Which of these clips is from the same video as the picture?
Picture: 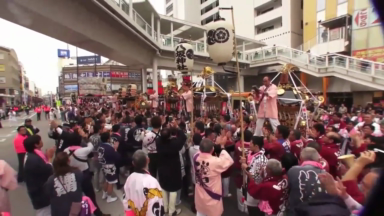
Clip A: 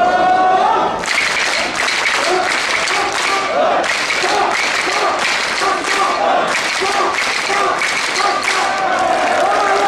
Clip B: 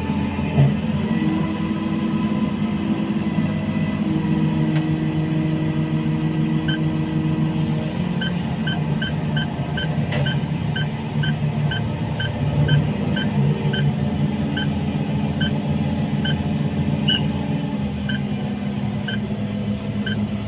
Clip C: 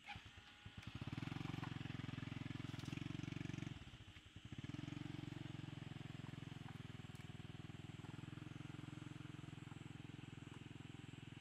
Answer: A